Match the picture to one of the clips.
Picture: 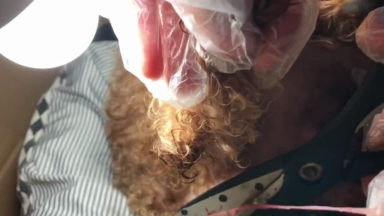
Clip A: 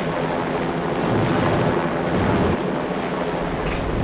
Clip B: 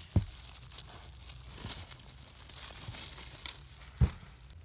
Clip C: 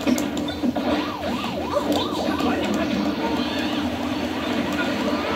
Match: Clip B